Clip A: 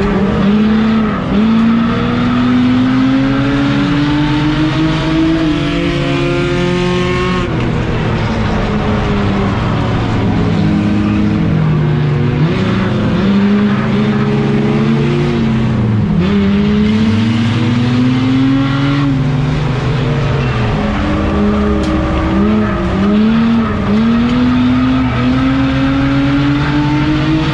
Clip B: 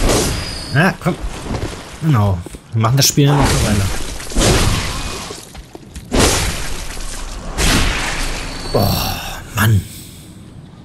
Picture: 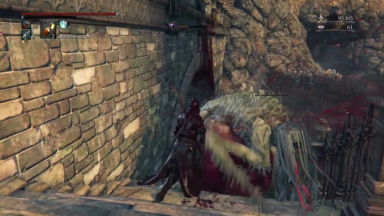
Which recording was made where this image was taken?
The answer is B